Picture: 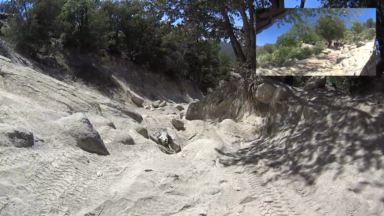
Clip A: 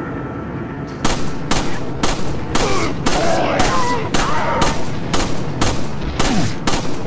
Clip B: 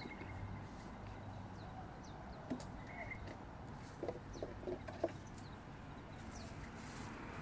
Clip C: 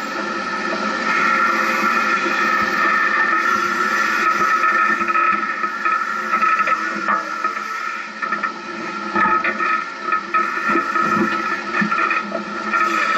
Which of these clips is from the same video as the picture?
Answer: C